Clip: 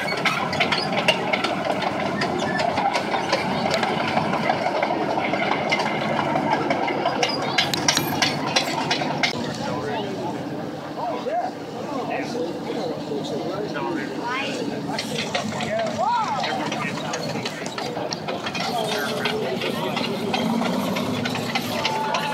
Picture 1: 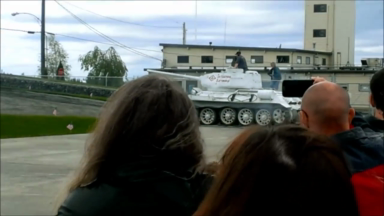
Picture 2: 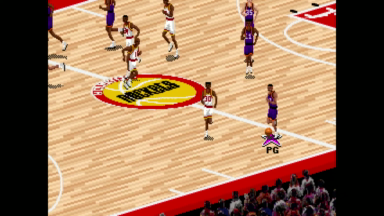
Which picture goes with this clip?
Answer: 1